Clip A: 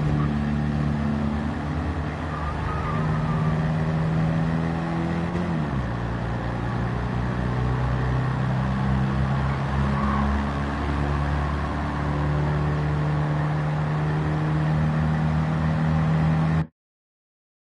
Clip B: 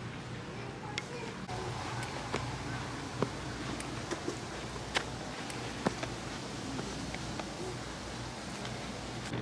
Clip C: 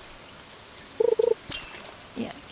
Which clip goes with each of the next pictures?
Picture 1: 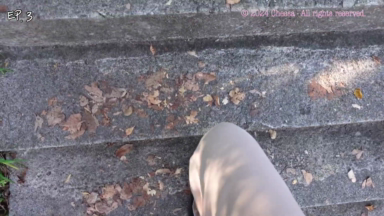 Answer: B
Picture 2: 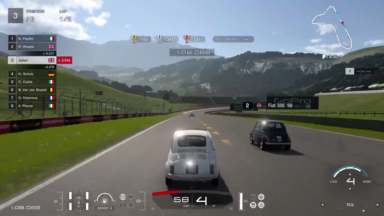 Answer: A